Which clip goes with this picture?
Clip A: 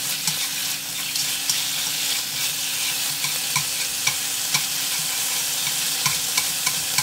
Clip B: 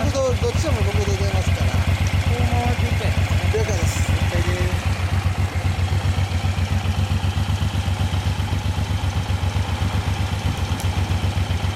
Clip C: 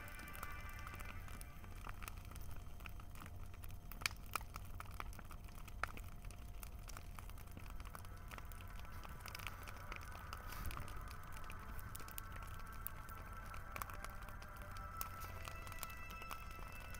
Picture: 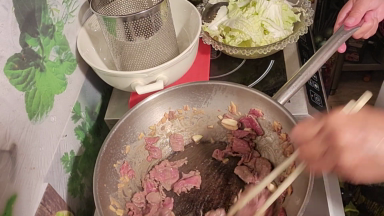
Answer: A